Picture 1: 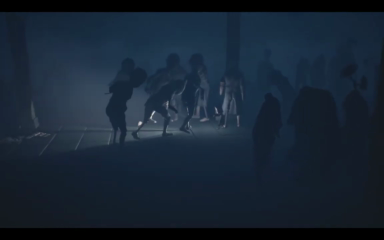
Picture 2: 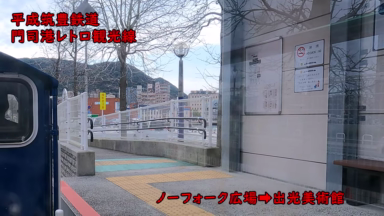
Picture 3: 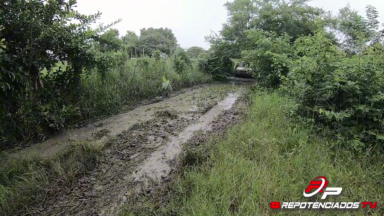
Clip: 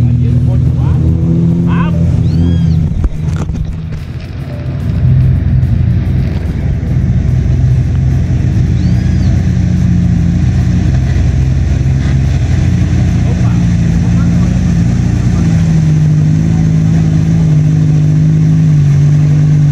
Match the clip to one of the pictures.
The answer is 3